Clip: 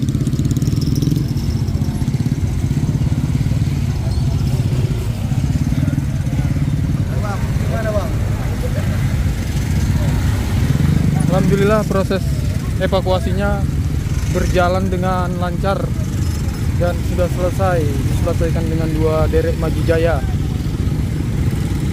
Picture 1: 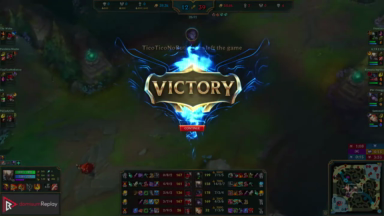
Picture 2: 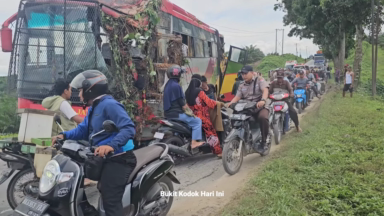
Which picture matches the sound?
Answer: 2